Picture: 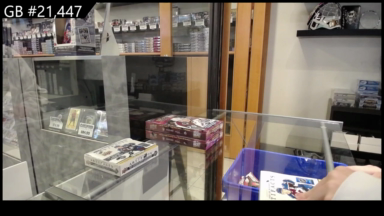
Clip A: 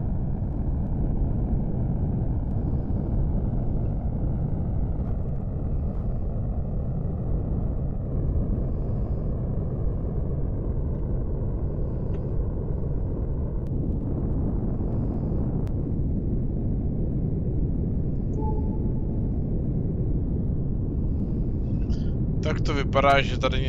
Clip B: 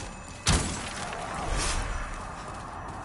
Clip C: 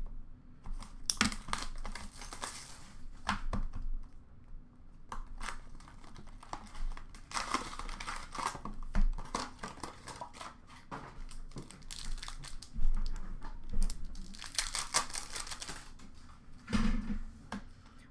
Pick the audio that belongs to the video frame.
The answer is C